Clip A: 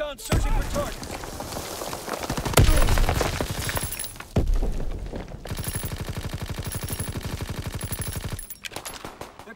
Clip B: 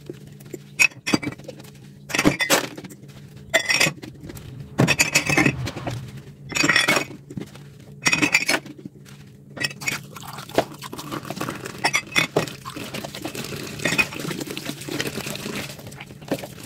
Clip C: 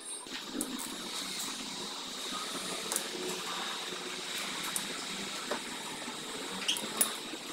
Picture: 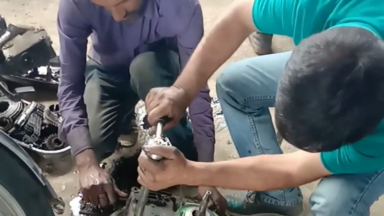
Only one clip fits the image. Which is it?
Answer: C